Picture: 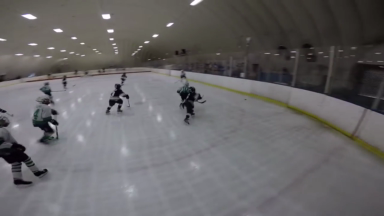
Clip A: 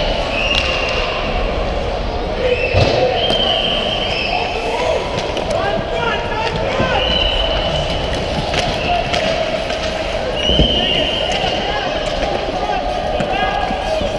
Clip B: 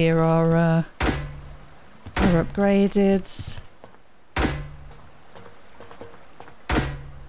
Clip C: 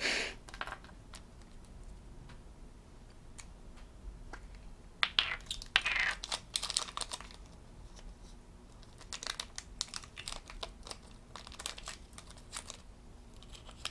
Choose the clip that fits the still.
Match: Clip A